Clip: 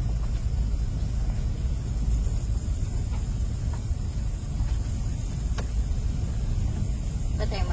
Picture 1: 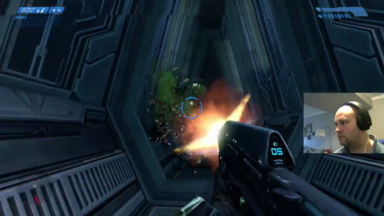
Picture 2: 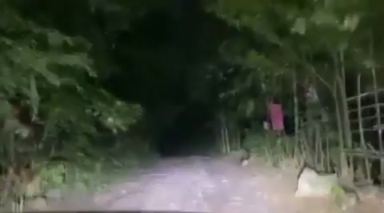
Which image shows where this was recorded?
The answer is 2